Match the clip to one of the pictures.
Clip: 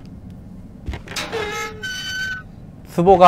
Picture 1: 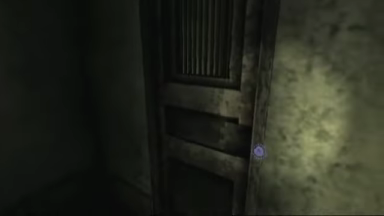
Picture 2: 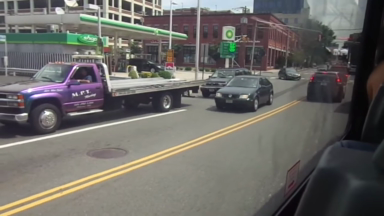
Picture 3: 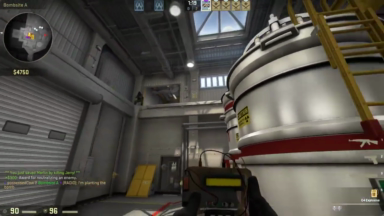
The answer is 1